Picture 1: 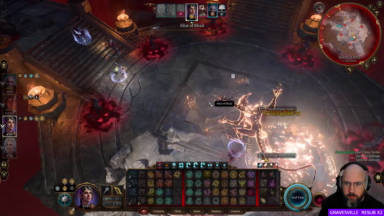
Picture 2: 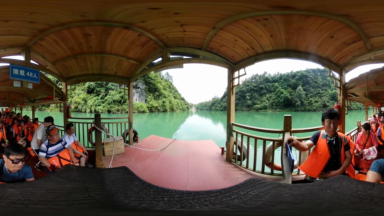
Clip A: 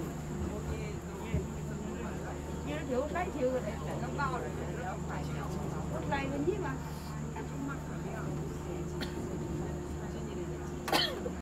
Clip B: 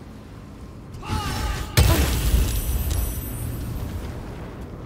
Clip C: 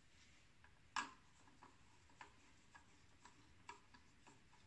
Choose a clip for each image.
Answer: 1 B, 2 A